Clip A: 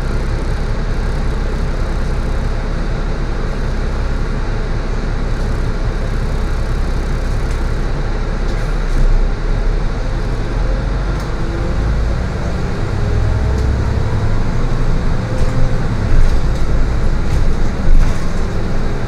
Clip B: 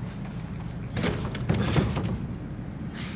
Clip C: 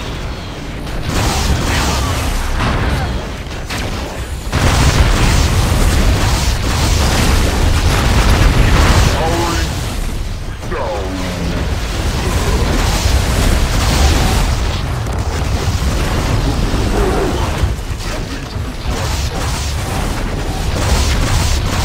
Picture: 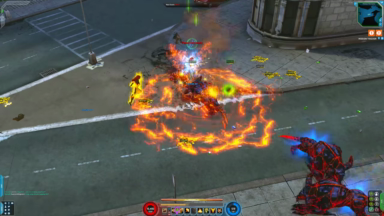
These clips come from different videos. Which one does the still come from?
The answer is C